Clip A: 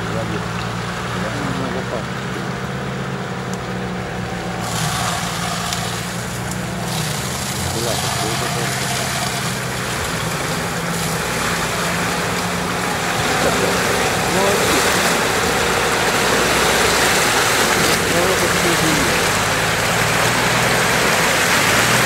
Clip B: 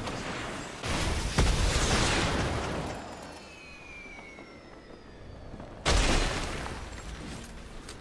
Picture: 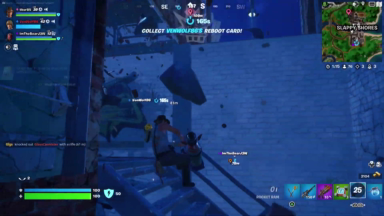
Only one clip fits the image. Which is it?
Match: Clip B